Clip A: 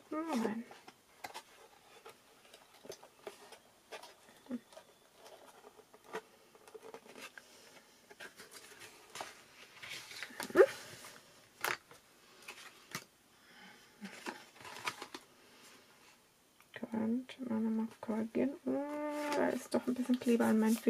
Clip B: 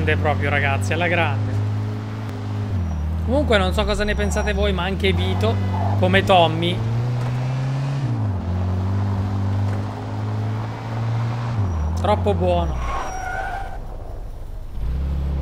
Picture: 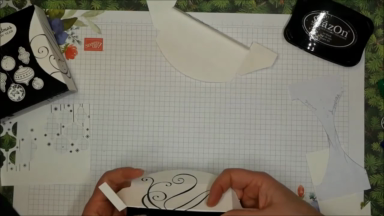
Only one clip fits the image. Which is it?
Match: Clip A